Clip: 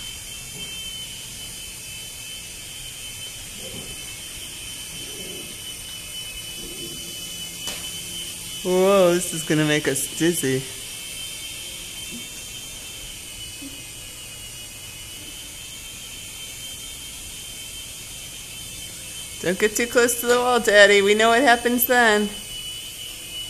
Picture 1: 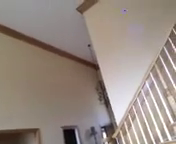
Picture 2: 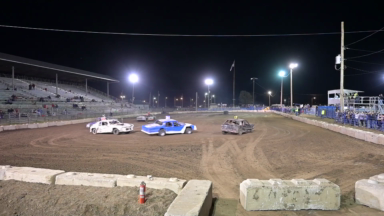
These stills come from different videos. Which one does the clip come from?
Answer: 1